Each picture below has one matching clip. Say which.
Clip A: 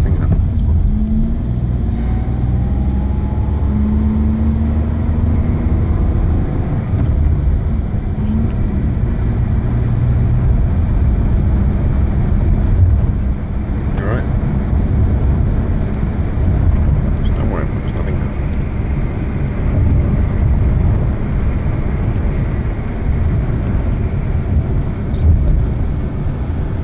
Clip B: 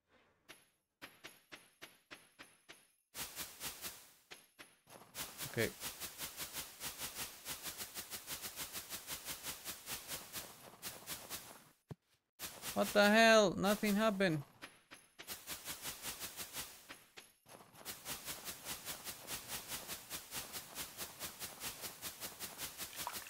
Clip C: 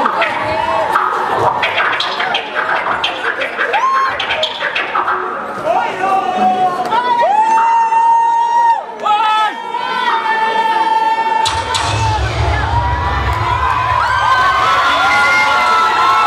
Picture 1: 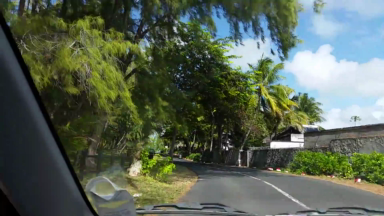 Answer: A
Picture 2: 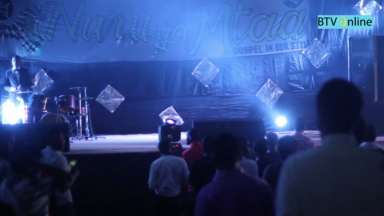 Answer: C